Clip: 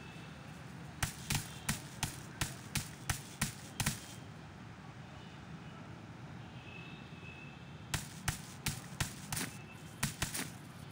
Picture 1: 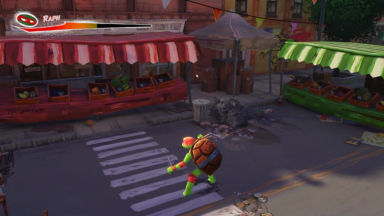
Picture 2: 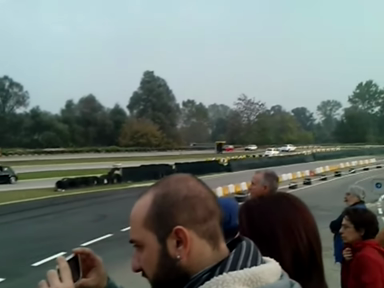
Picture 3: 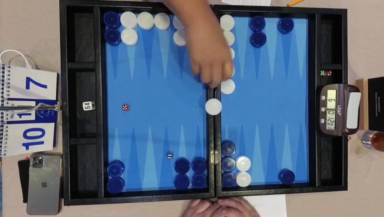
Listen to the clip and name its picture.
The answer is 1